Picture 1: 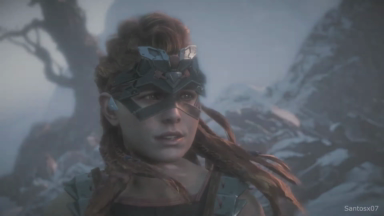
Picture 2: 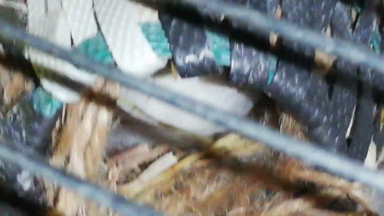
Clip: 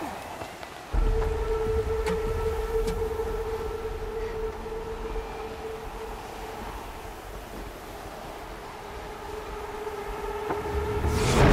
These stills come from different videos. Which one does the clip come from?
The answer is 1